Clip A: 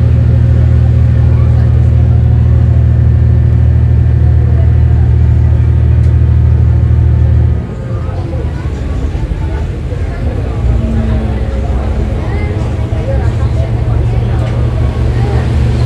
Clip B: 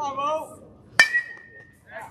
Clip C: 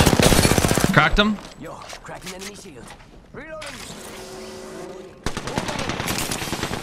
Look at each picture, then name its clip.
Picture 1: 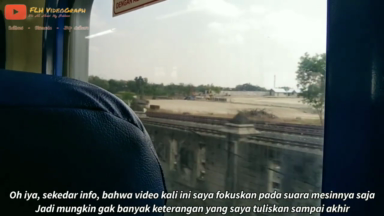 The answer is A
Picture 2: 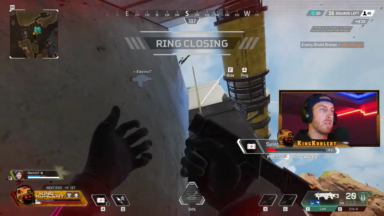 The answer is C